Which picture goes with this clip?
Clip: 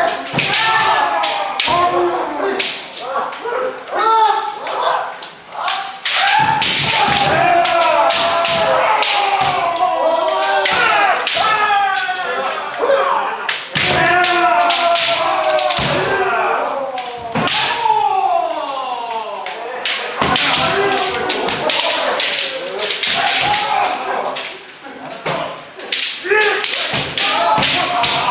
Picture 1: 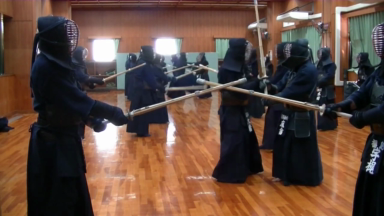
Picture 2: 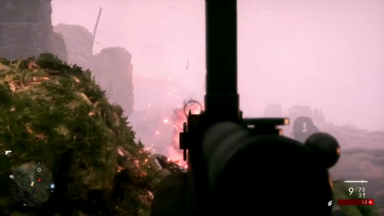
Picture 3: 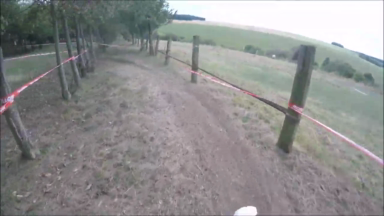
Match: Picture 1